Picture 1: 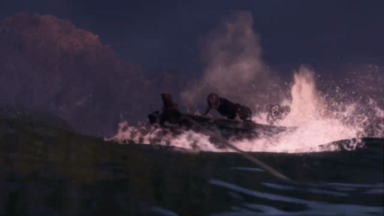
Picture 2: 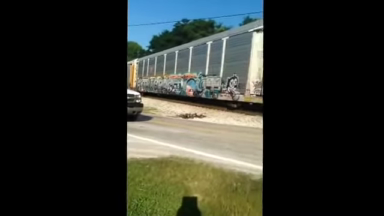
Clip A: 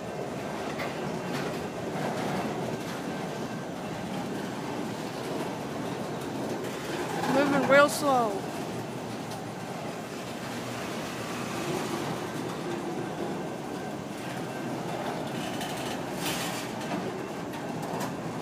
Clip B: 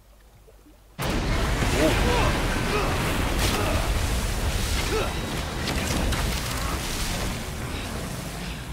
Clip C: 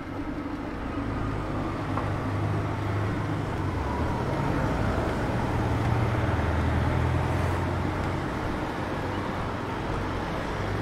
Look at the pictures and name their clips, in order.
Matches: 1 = B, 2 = A